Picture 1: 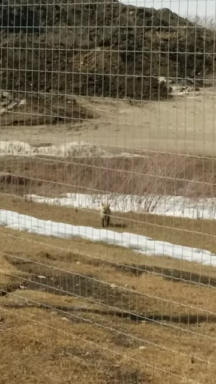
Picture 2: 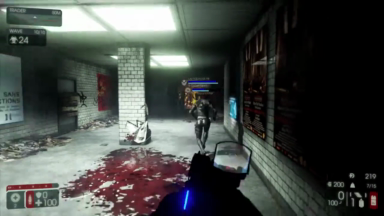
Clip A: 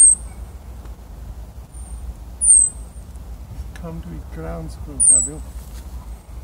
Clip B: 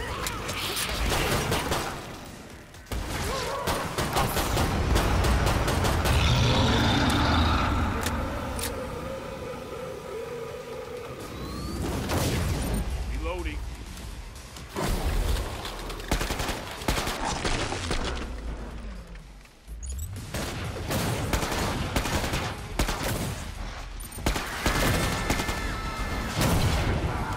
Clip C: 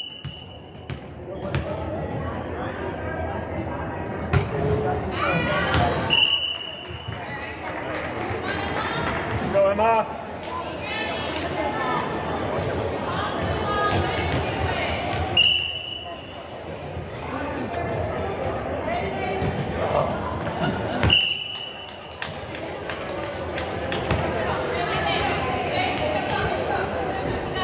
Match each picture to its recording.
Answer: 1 A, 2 B